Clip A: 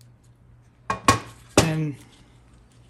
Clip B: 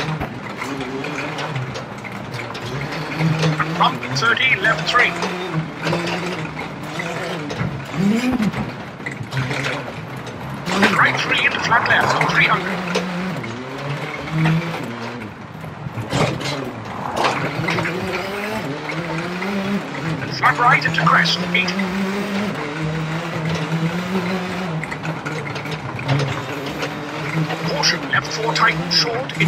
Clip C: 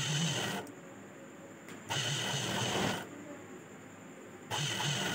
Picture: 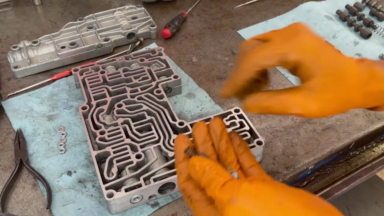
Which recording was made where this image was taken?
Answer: A